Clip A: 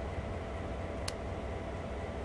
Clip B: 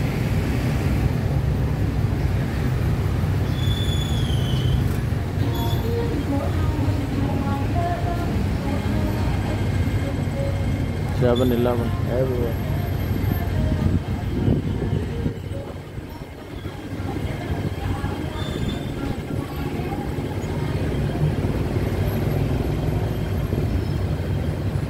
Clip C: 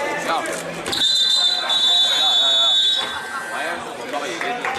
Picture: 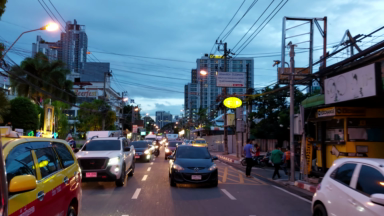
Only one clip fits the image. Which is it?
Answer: B